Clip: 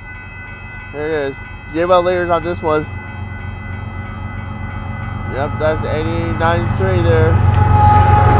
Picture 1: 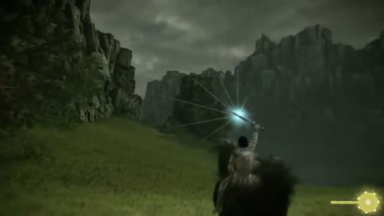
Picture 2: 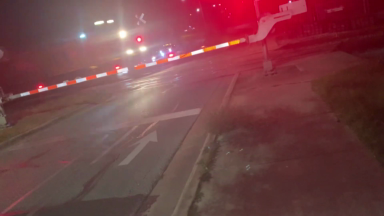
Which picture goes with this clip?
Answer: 2